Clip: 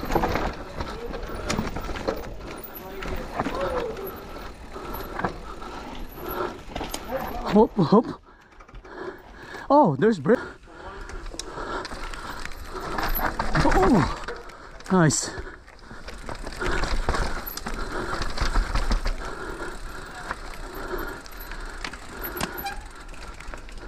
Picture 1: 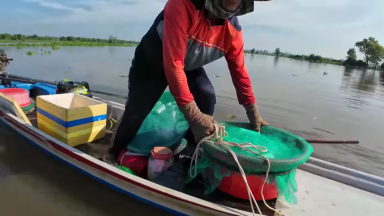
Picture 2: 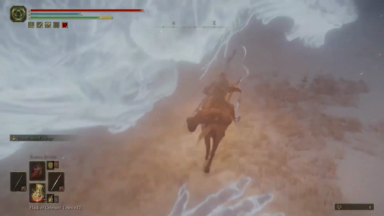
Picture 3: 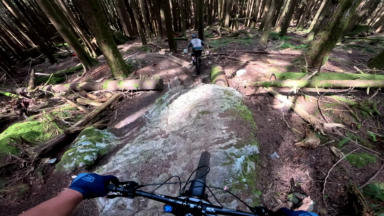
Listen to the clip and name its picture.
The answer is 3